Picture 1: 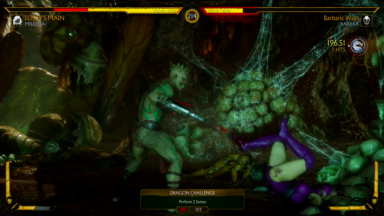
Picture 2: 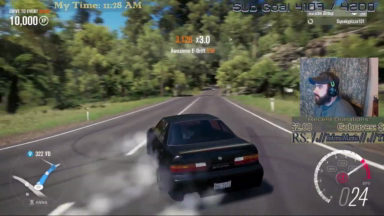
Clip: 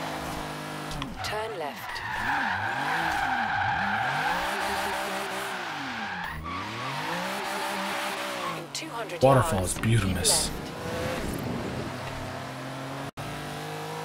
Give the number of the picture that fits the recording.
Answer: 2